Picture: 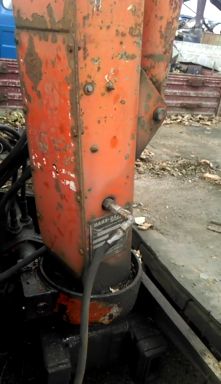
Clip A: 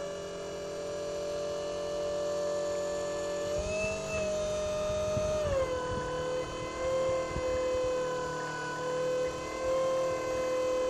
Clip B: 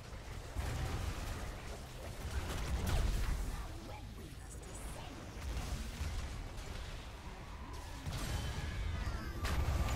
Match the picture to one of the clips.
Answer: A